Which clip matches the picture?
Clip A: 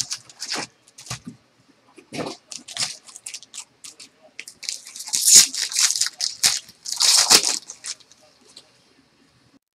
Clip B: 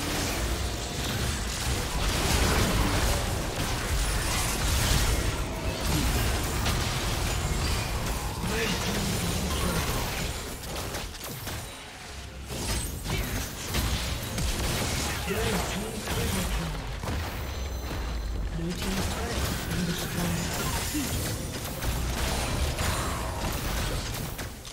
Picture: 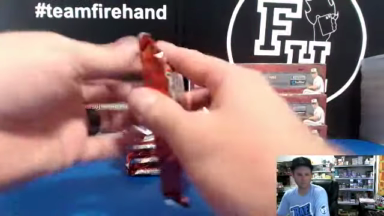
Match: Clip A